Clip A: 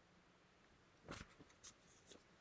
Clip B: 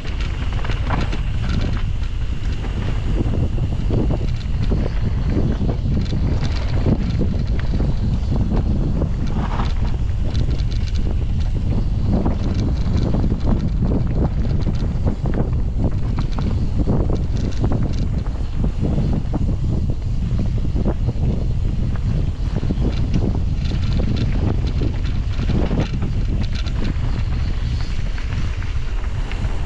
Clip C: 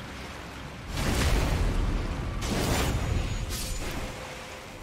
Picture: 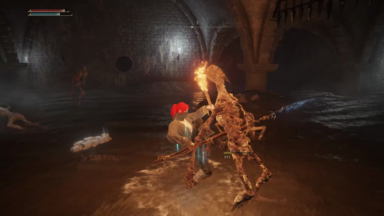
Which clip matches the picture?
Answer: C